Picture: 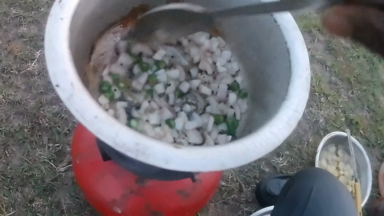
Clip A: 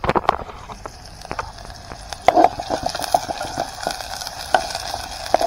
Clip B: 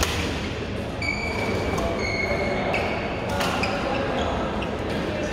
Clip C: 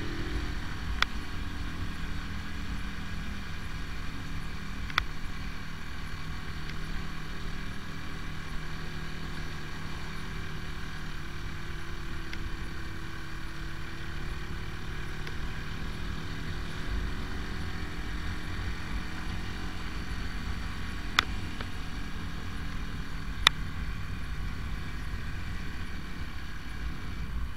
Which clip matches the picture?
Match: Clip A